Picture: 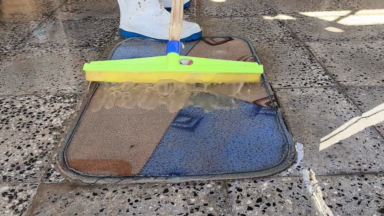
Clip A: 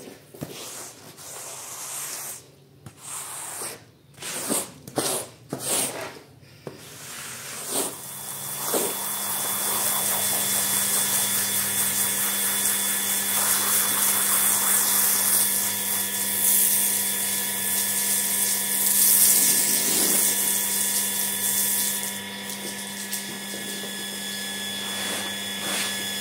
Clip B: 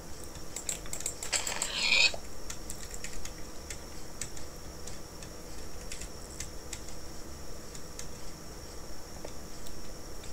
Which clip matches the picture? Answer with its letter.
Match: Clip A